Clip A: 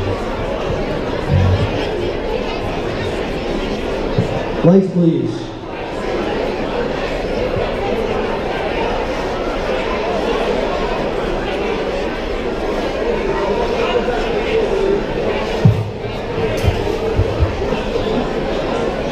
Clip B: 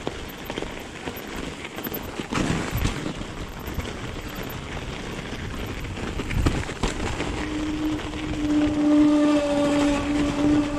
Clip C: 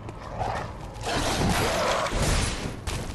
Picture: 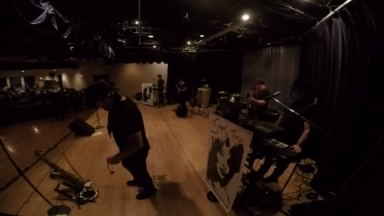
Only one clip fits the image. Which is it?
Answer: A